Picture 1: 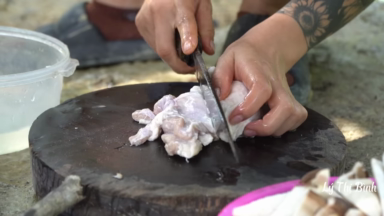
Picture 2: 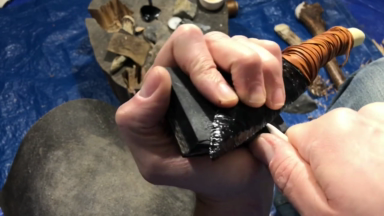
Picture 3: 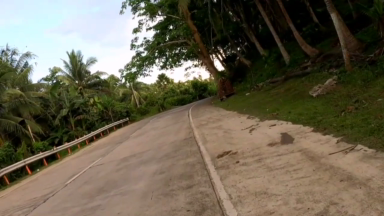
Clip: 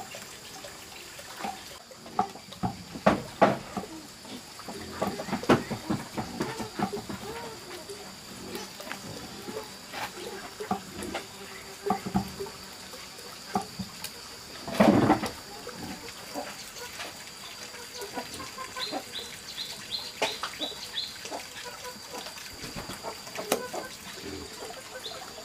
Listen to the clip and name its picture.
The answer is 1